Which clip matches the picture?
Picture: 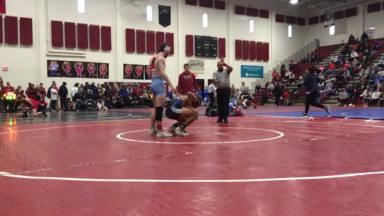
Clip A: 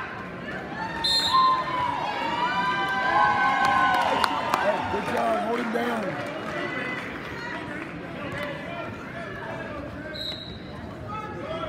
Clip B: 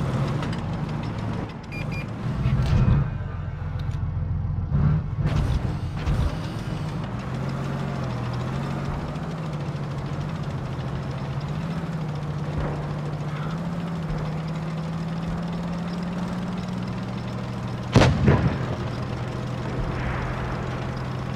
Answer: A